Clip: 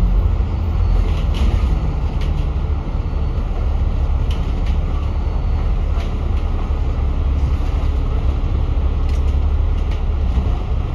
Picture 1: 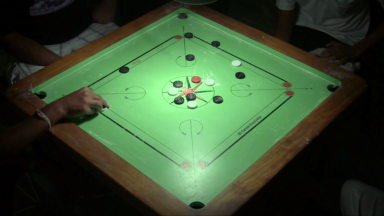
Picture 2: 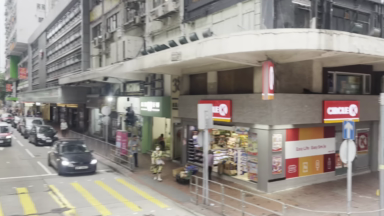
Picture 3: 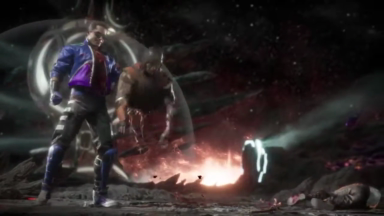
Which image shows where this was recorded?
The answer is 2